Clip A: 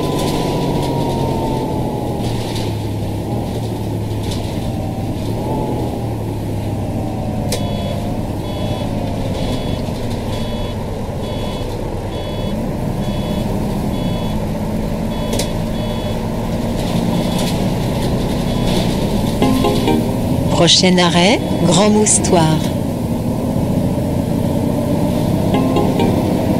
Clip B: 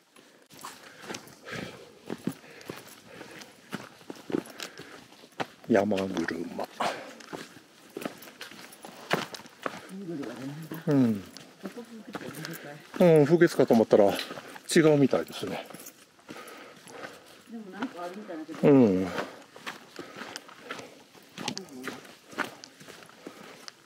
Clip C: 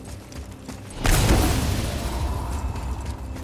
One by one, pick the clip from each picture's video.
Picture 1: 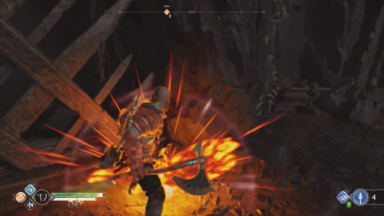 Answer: C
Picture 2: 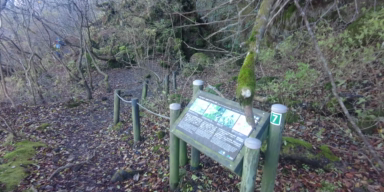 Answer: B